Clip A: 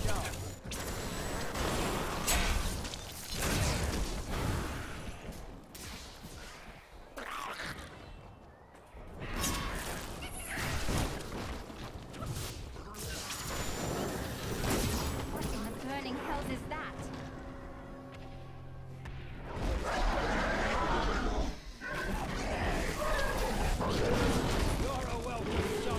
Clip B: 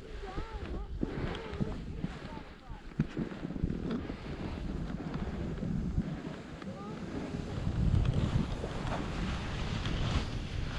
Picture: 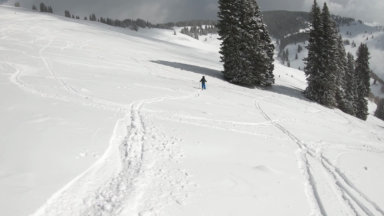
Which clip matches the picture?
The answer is B